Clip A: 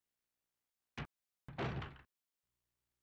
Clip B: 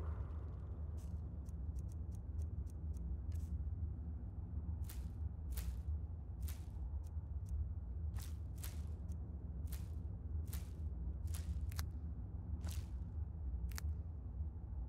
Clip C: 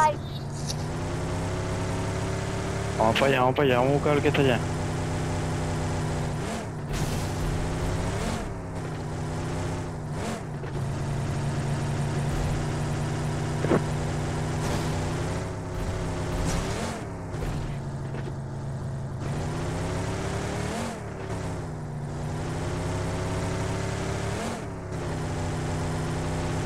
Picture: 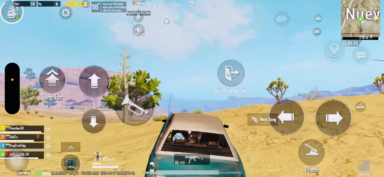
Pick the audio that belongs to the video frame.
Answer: C